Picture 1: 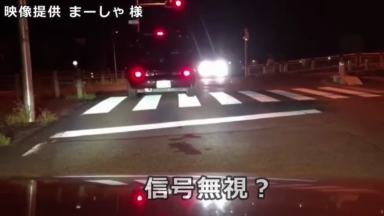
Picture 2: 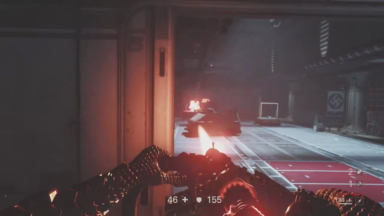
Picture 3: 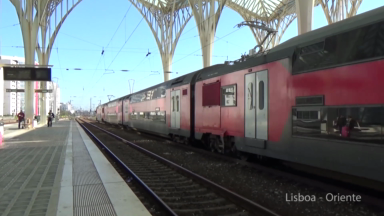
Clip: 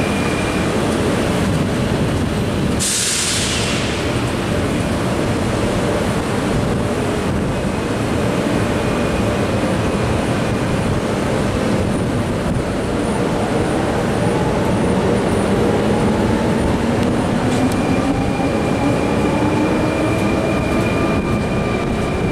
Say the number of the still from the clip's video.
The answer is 3